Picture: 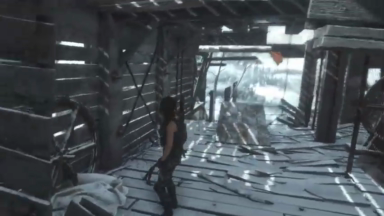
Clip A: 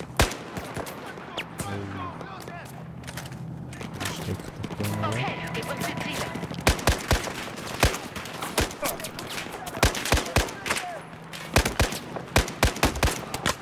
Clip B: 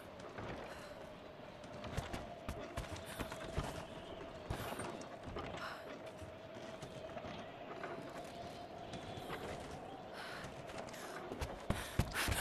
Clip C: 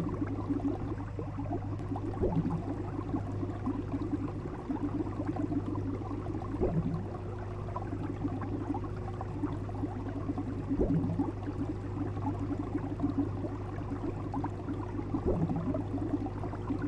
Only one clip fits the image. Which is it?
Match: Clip B